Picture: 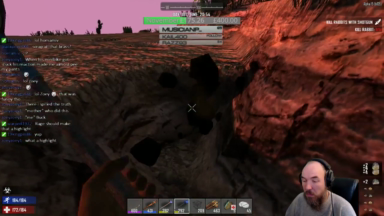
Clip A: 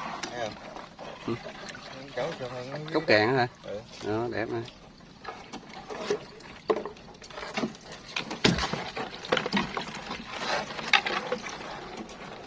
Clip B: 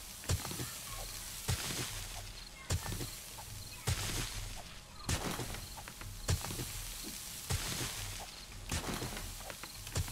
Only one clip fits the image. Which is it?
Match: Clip B